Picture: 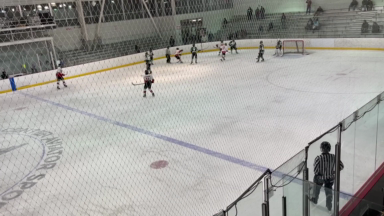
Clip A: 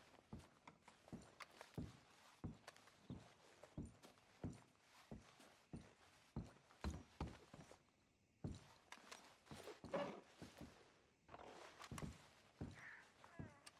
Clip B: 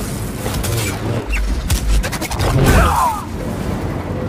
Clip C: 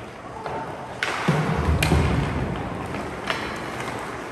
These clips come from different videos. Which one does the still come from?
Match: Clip C